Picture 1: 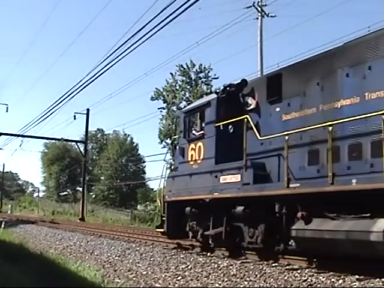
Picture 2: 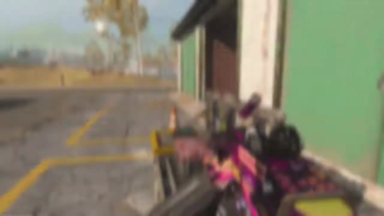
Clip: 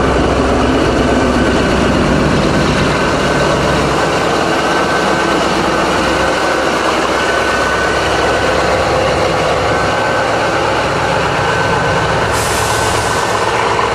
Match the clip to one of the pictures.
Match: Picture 1